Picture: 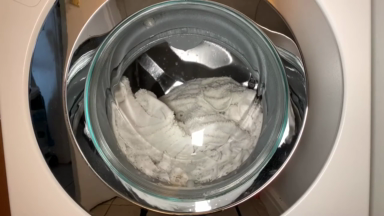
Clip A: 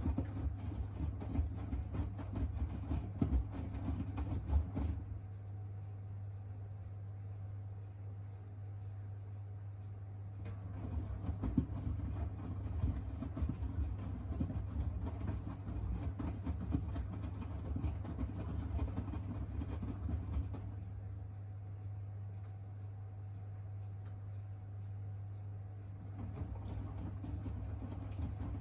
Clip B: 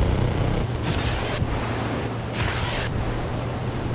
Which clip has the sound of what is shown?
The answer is A